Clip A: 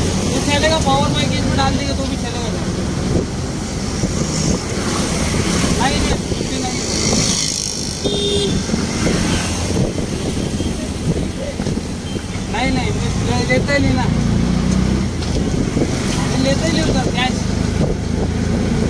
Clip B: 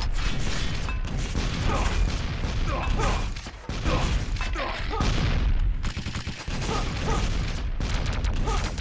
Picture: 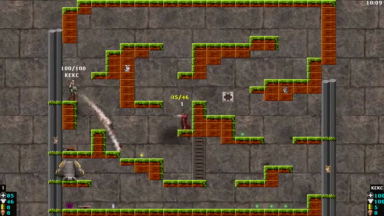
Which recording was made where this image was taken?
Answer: B